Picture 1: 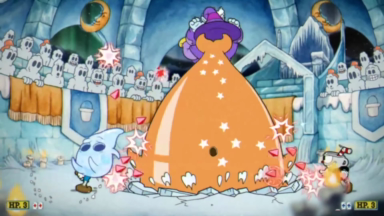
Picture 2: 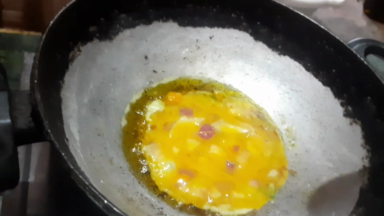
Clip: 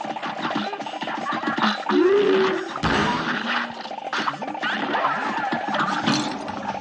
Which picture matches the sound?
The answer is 1